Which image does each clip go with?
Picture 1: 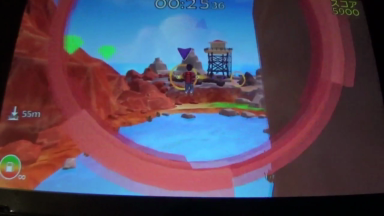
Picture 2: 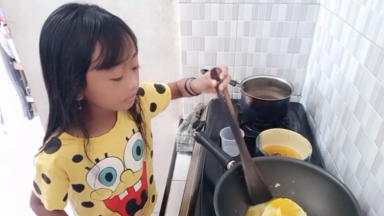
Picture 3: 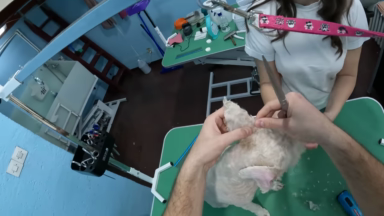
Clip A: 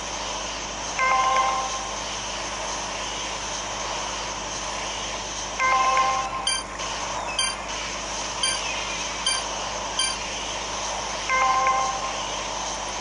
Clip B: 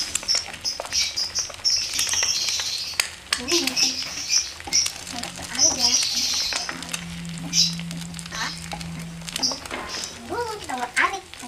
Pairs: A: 1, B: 2